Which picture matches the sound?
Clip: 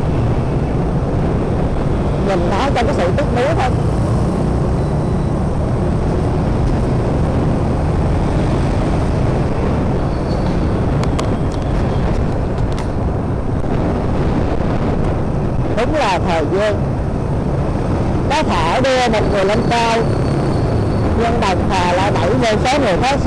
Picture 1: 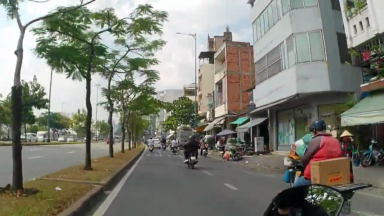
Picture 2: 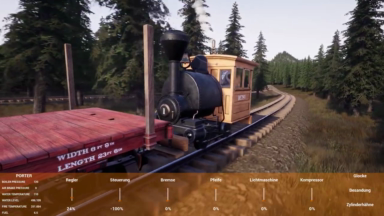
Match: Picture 1